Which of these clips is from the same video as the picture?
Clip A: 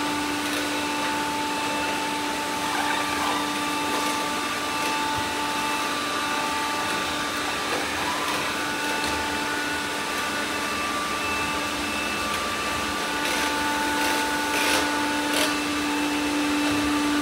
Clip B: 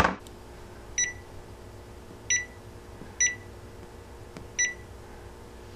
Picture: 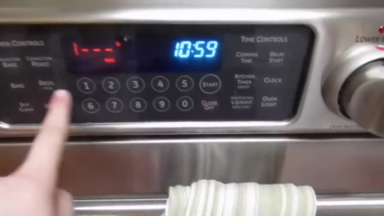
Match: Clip B